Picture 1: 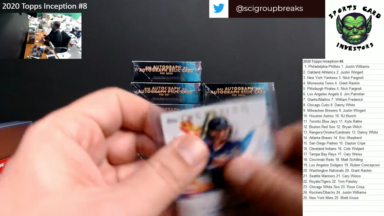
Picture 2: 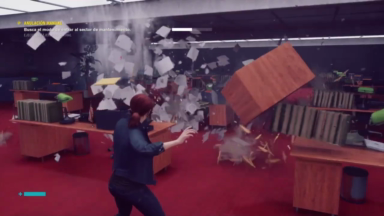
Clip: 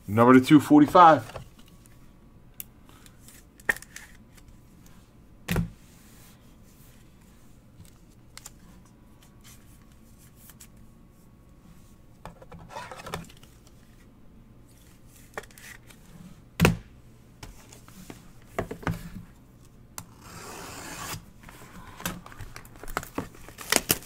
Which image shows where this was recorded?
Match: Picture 1